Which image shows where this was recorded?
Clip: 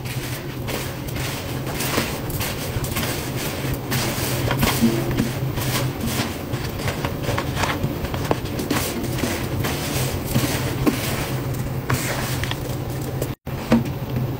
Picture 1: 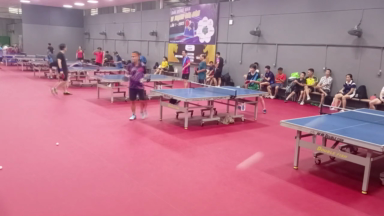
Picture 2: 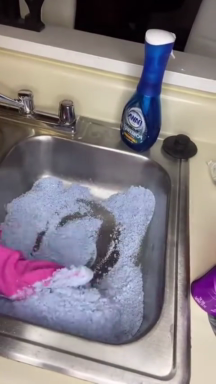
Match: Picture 2